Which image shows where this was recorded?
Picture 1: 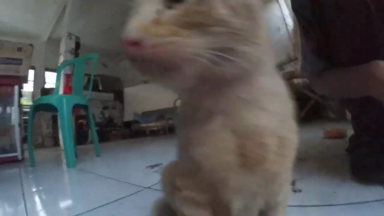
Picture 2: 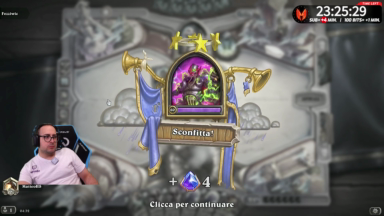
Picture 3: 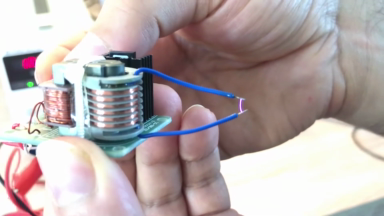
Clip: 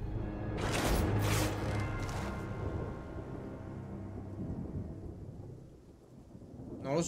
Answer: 2